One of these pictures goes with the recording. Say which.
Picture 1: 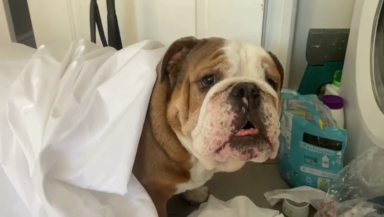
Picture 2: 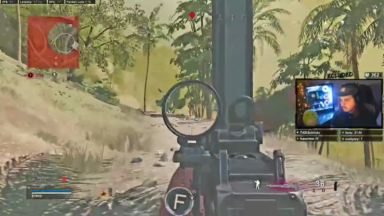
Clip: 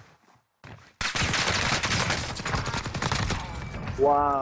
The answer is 2